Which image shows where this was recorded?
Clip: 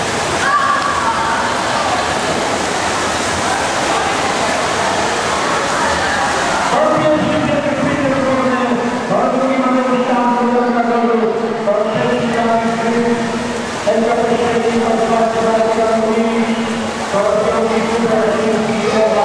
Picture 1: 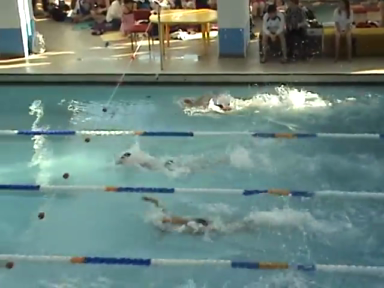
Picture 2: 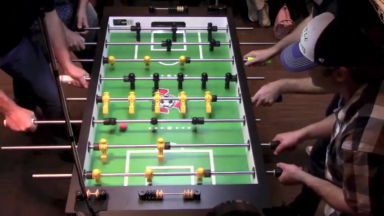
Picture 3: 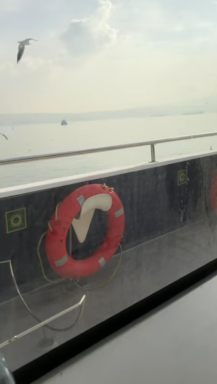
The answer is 1